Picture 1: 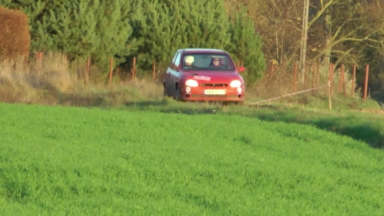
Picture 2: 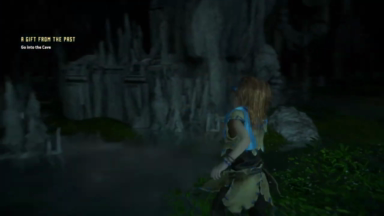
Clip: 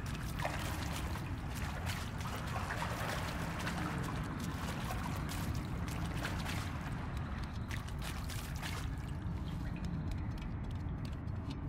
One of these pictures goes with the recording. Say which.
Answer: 2